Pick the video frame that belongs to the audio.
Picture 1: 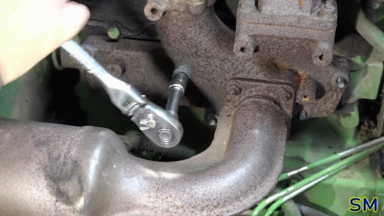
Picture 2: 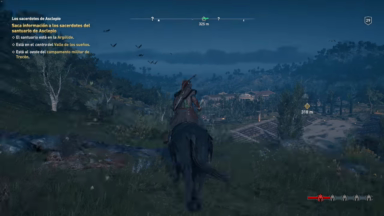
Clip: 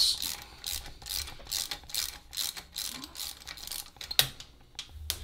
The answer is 1